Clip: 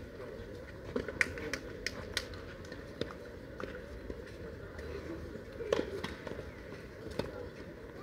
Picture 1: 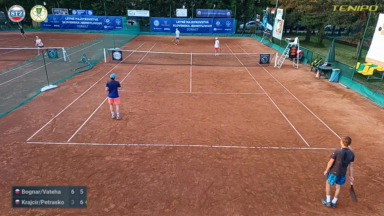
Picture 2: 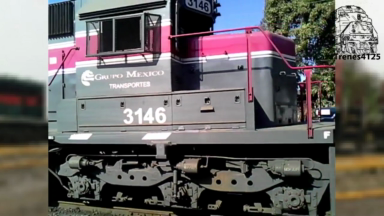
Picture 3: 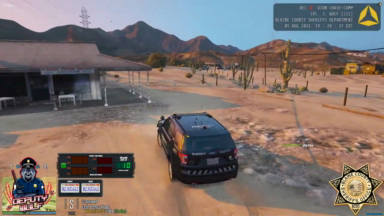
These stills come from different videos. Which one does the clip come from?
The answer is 1